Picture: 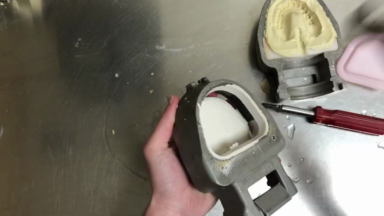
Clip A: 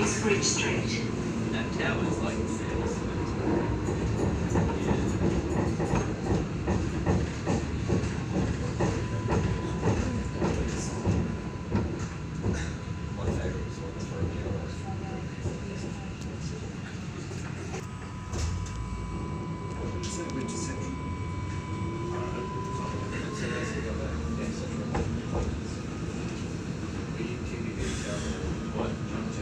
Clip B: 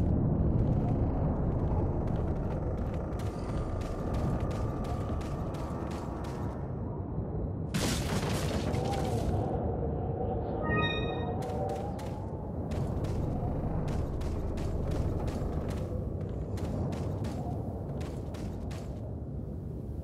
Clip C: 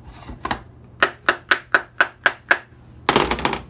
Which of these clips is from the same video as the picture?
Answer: C